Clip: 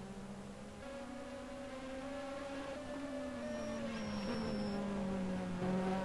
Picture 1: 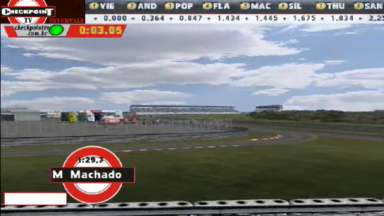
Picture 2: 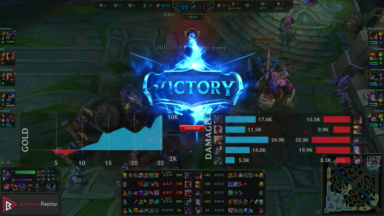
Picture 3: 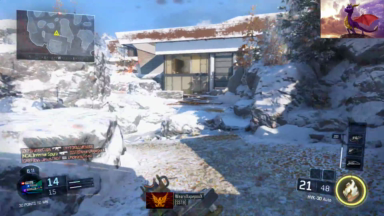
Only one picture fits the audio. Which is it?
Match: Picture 1